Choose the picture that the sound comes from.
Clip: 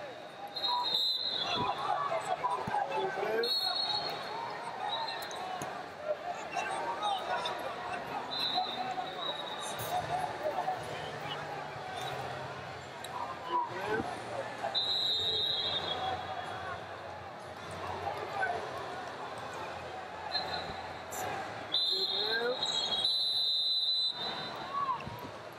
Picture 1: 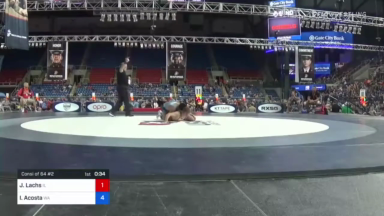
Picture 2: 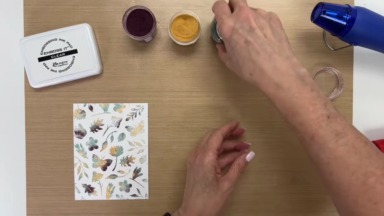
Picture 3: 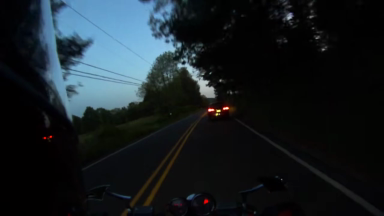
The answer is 1